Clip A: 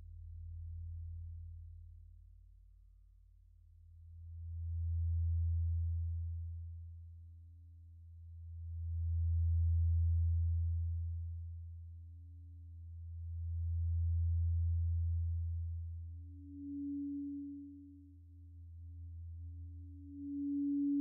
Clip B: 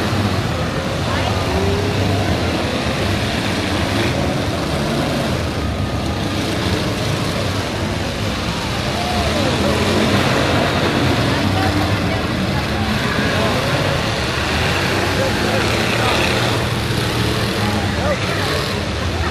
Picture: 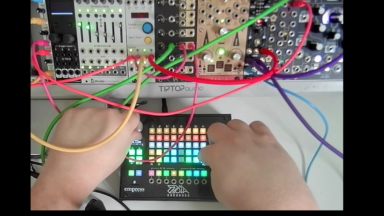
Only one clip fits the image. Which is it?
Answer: A